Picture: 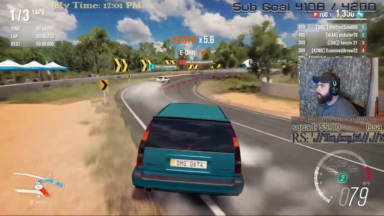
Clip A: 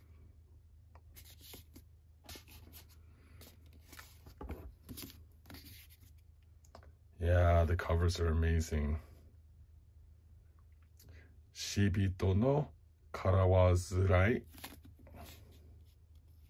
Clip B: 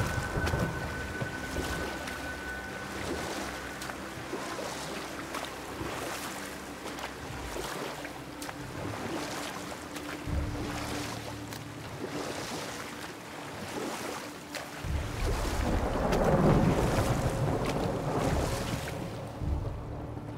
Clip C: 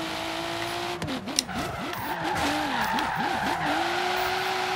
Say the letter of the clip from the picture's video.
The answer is C